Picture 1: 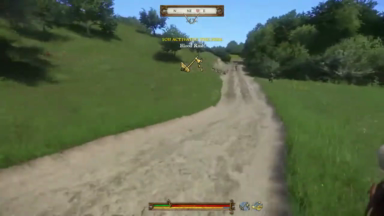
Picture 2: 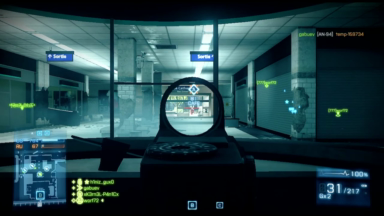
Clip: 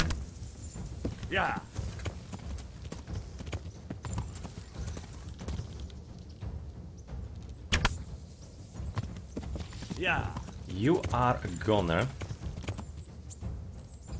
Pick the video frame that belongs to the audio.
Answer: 1